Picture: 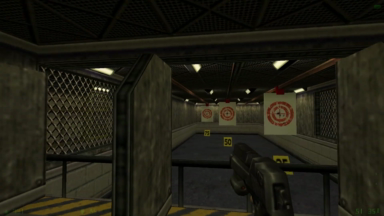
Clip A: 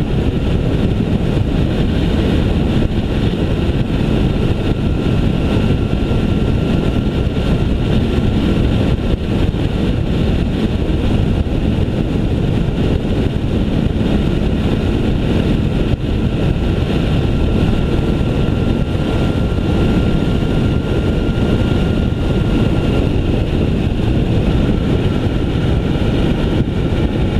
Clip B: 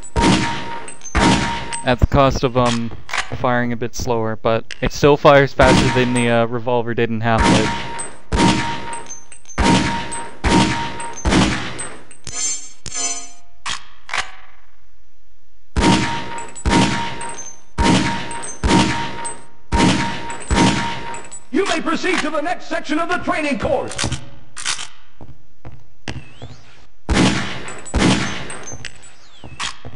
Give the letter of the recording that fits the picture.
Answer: B